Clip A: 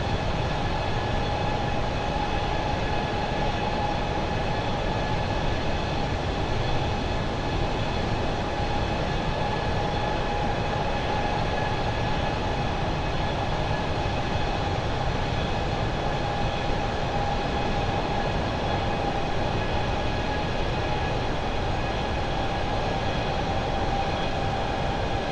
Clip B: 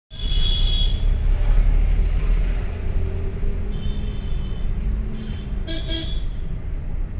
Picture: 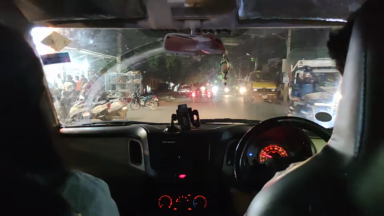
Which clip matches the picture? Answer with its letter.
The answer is B